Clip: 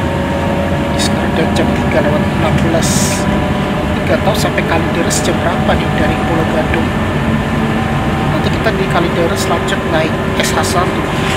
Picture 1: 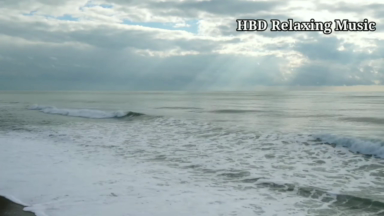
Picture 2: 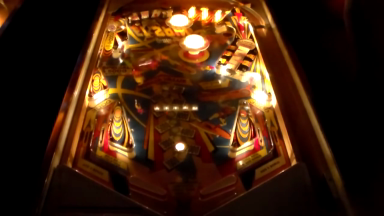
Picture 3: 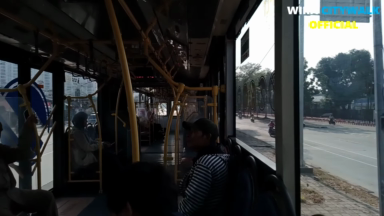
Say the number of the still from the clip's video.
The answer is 3